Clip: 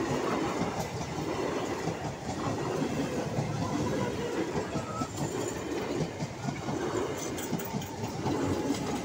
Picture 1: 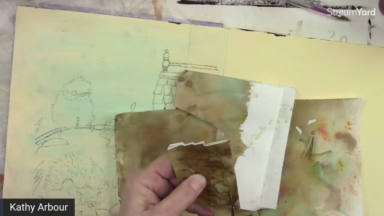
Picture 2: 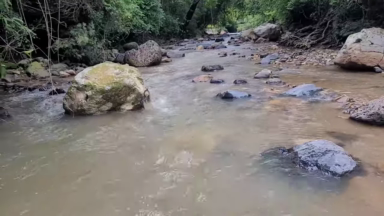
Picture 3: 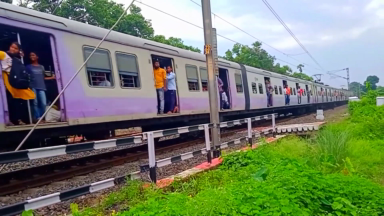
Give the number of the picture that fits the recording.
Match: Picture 3